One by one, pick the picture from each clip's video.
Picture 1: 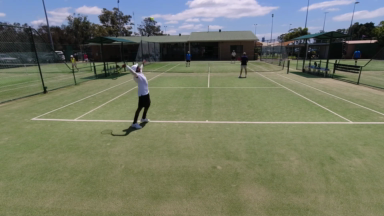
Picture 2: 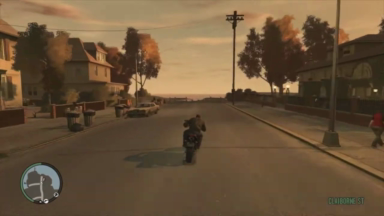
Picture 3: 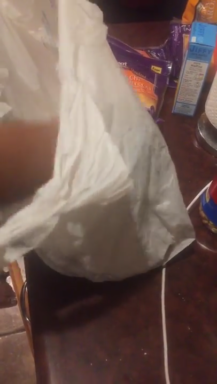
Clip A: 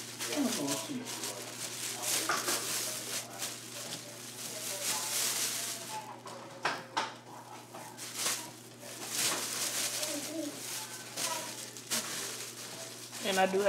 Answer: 3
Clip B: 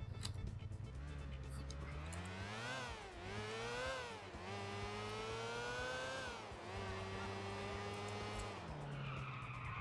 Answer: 2